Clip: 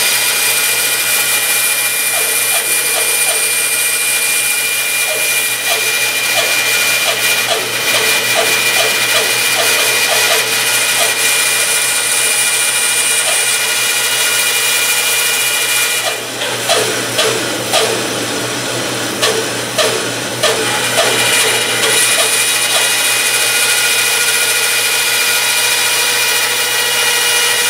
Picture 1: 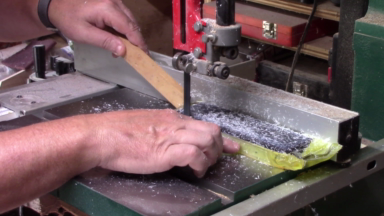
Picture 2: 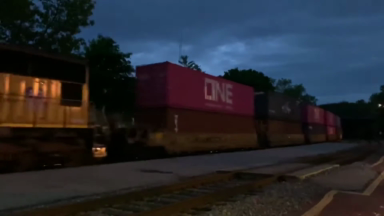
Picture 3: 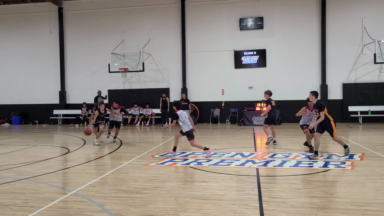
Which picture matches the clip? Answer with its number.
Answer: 1